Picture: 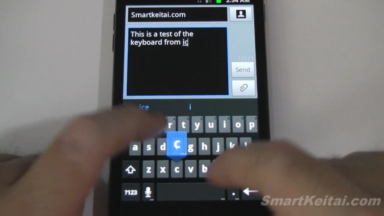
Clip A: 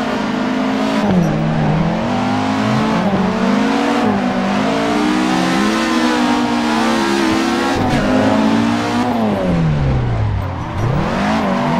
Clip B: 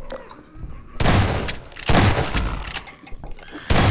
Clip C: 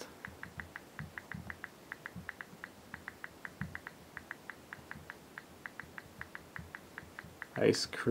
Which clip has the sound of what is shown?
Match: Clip C